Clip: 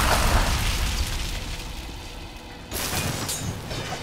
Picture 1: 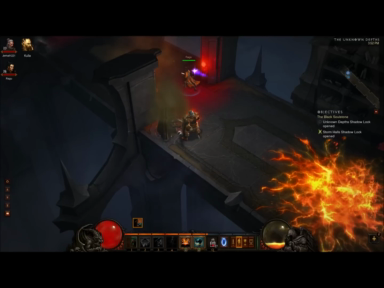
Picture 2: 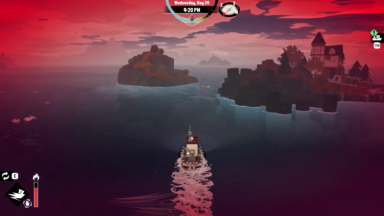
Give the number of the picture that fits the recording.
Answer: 1